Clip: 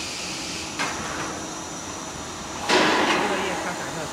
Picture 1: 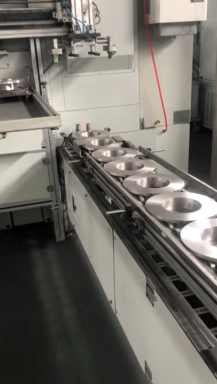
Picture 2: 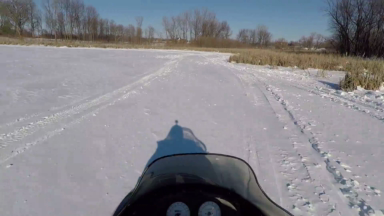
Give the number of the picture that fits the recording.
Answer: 1